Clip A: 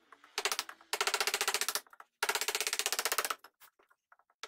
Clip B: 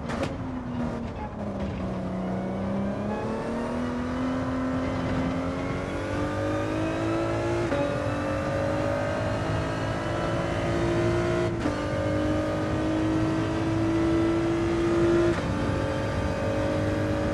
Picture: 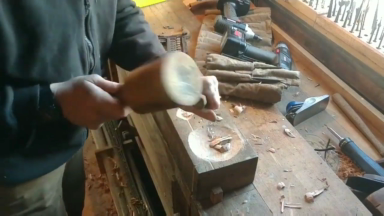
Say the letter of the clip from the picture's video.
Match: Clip A